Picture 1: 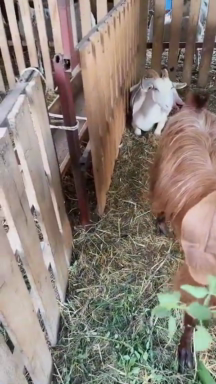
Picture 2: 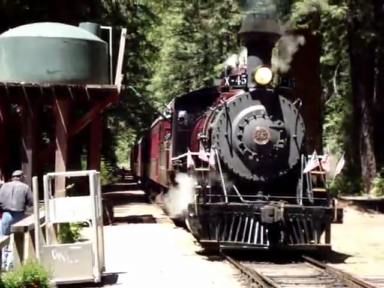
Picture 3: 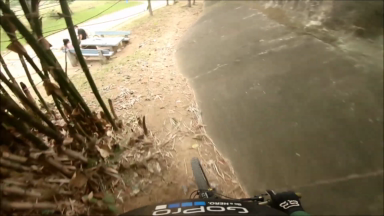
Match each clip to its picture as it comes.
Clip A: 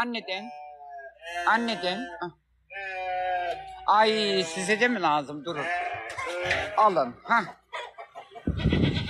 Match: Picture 1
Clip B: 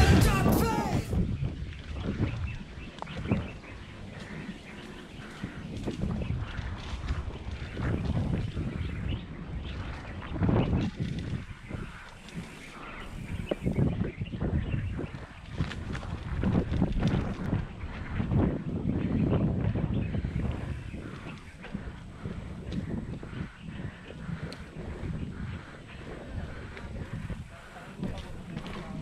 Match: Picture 3